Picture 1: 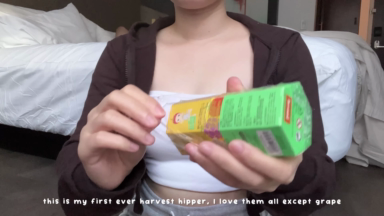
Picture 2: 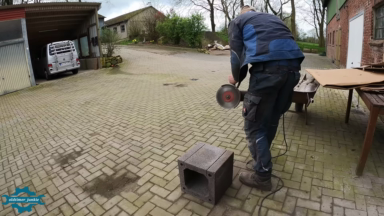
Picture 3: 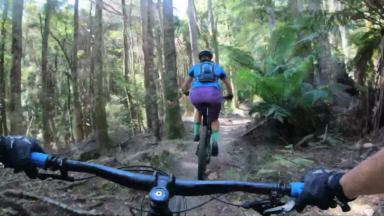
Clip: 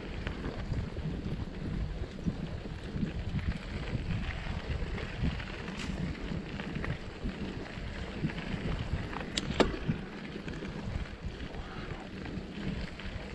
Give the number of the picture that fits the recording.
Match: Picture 3